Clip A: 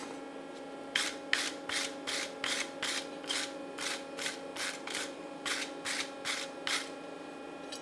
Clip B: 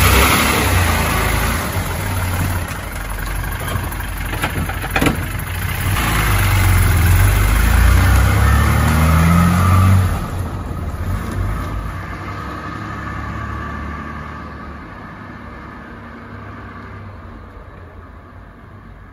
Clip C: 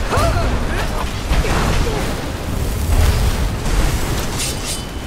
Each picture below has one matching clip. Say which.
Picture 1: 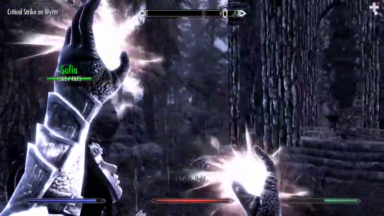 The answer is C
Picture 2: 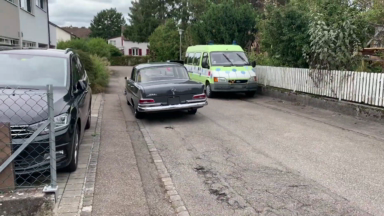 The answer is B